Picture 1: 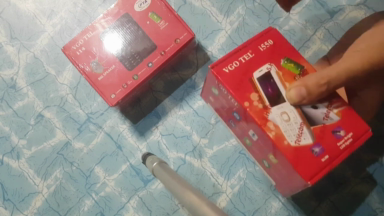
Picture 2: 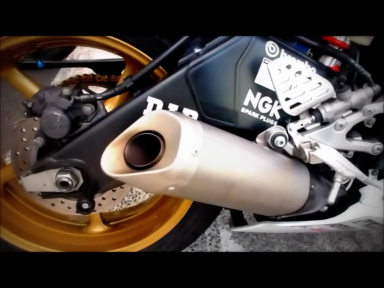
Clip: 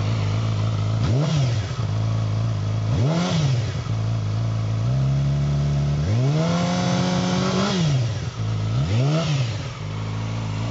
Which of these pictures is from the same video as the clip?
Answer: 2